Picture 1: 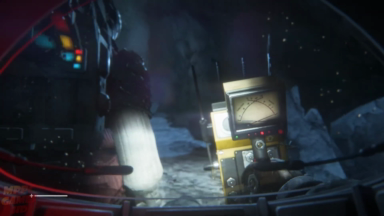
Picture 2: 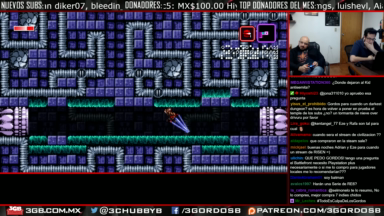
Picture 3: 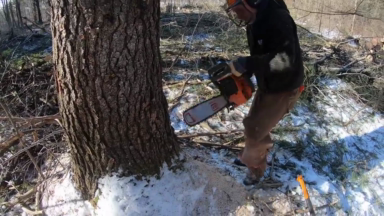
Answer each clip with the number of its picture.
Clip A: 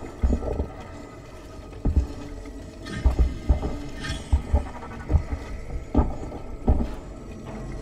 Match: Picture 1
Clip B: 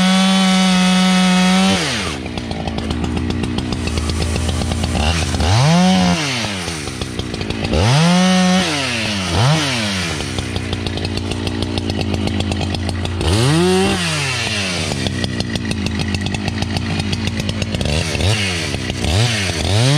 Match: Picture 3